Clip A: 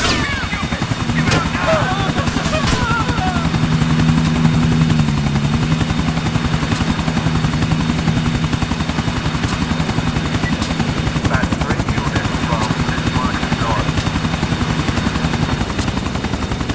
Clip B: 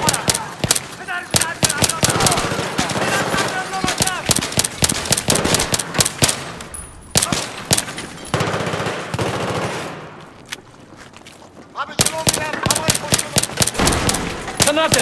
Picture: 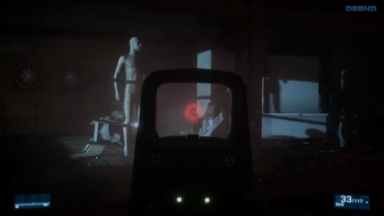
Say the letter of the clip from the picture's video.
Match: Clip B